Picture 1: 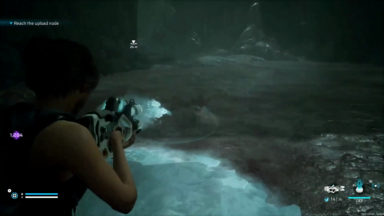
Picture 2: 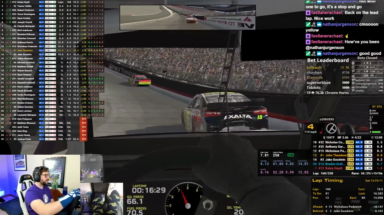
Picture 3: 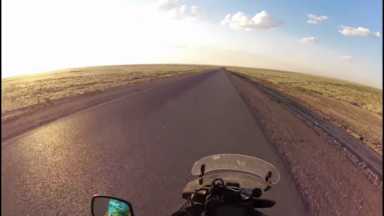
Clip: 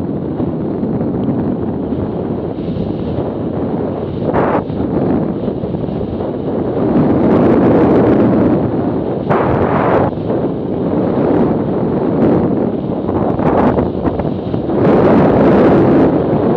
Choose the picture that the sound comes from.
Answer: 3